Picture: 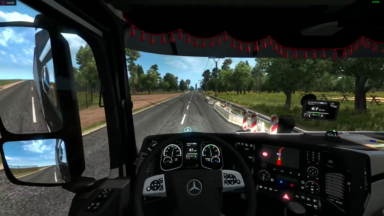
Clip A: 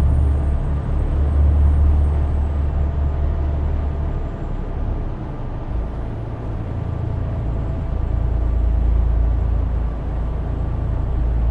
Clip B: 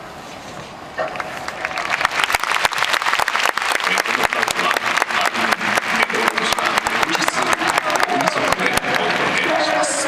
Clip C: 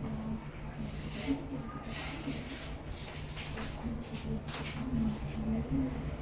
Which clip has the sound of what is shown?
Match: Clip A